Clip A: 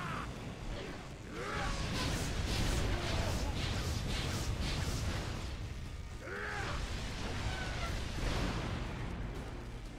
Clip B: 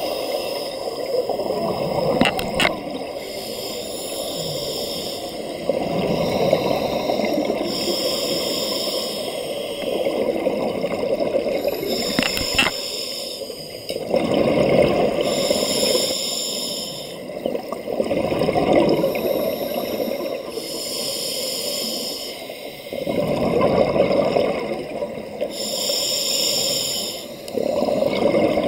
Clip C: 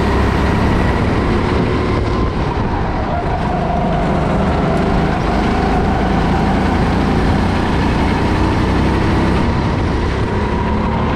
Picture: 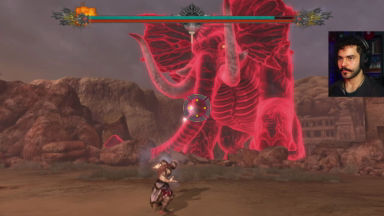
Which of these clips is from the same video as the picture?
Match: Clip A